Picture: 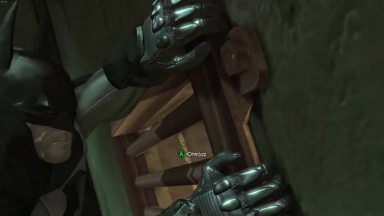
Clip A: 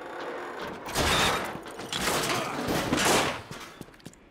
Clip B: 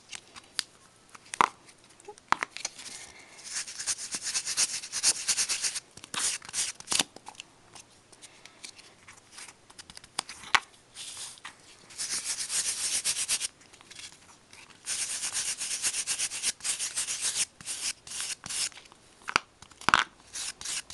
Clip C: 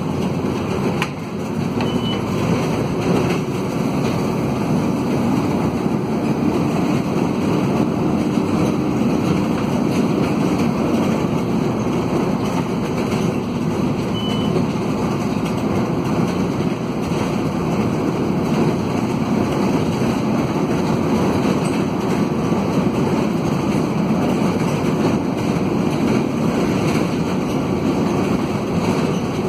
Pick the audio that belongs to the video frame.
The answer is A